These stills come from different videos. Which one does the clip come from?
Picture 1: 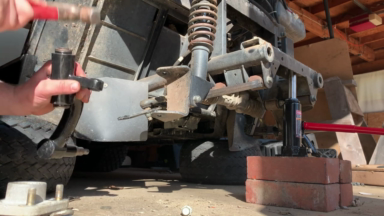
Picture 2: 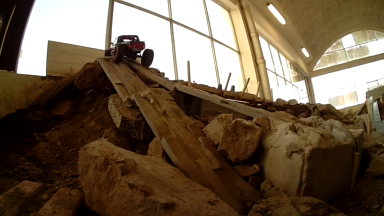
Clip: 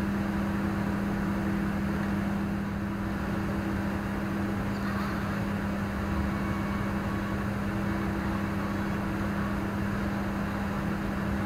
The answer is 2